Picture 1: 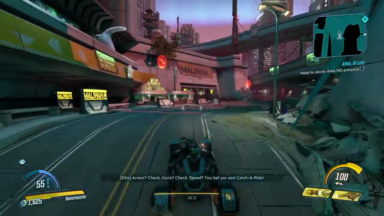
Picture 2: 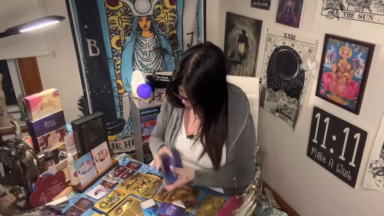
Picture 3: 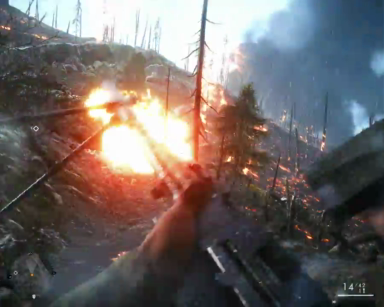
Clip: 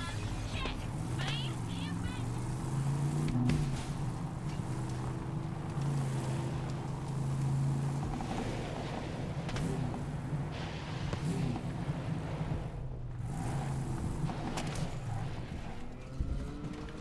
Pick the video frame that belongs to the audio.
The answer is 1